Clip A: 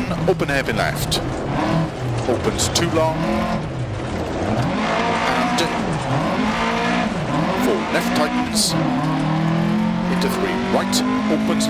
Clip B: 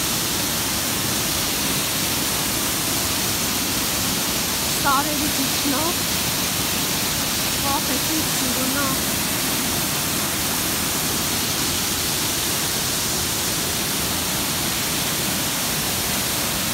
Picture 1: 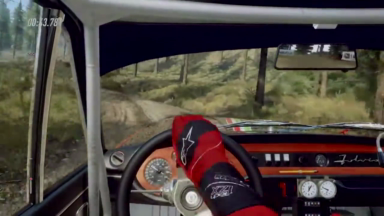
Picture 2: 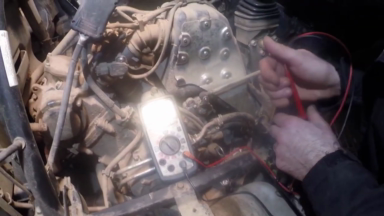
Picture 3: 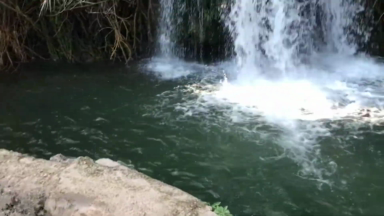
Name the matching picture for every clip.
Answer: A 1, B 3